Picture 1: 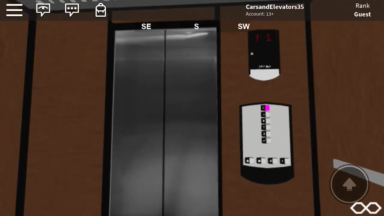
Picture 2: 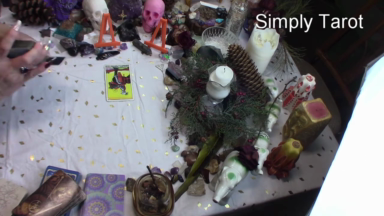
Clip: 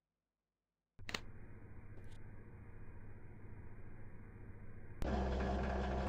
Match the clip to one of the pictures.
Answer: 1